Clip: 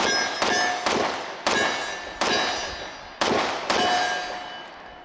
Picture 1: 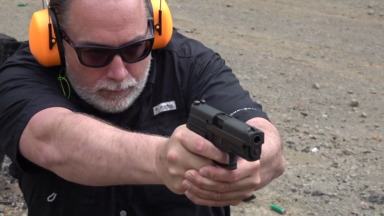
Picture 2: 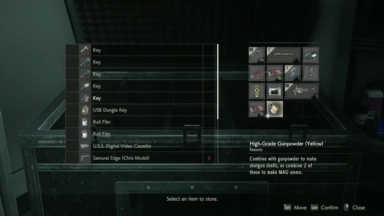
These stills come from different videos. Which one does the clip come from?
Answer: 1